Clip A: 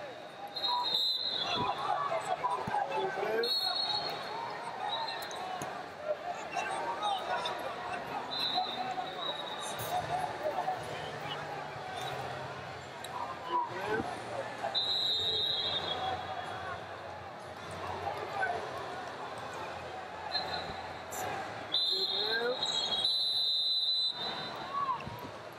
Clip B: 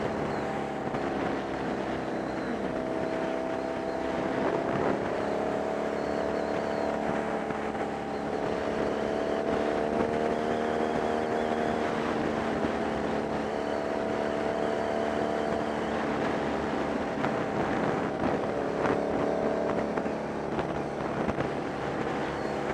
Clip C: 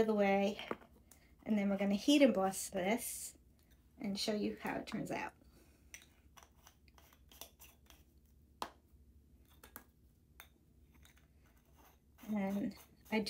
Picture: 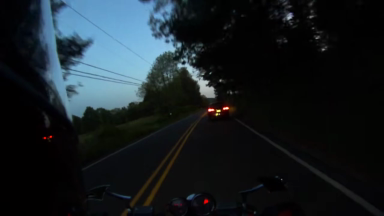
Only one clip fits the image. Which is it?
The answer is B